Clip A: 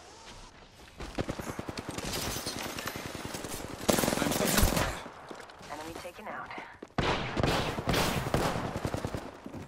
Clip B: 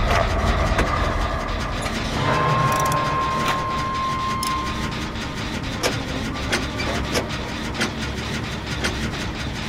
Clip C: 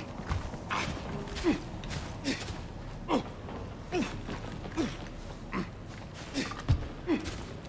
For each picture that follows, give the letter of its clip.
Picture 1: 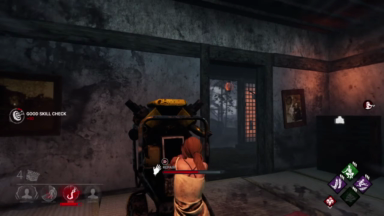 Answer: B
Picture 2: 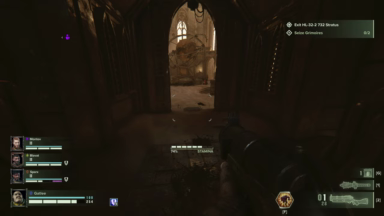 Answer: C